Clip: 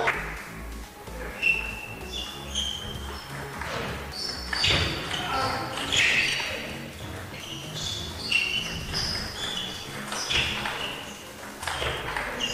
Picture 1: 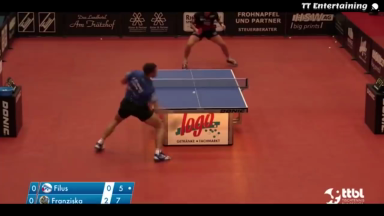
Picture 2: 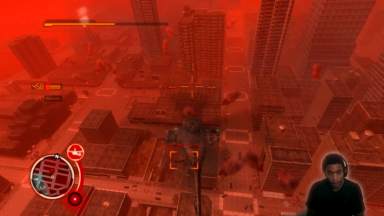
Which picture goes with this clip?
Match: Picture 1